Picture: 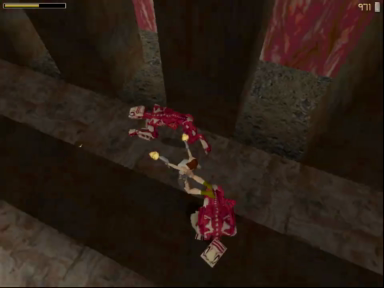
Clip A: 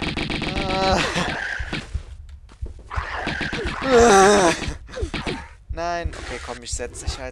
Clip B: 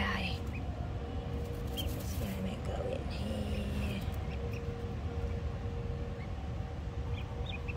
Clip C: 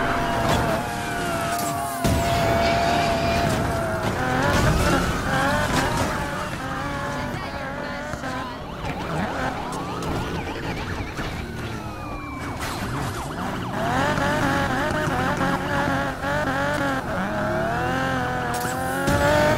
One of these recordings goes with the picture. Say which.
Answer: A